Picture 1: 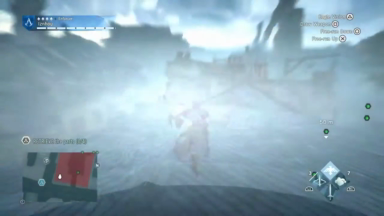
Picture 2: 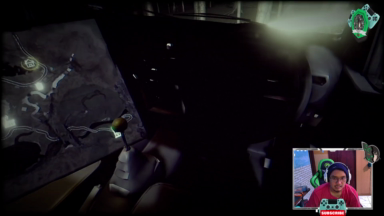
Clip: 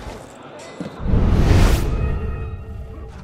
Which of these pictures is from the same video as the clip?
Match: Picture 1